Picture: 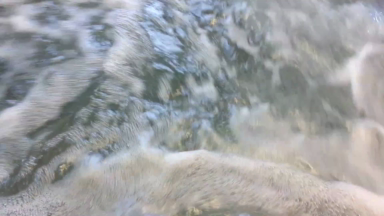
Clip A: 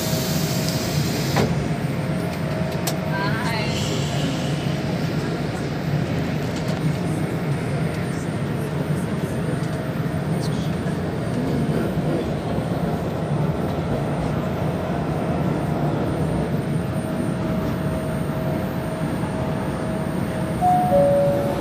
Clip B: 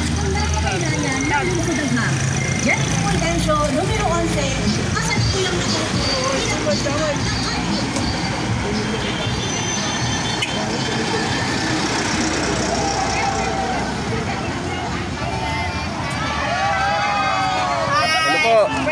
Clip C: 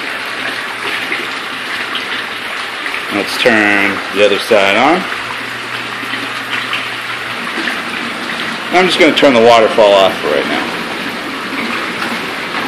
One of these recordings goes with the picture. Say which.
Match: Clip C